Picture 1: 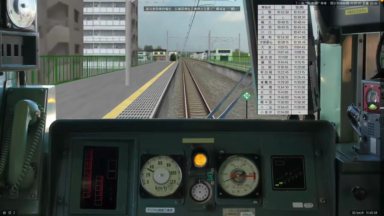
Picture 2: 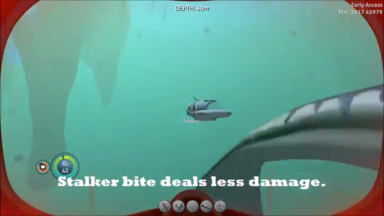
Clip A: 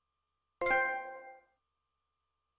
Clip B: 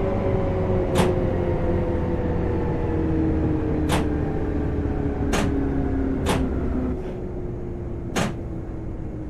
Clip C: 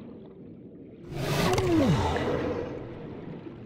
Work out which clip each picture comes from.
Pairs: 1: B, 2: C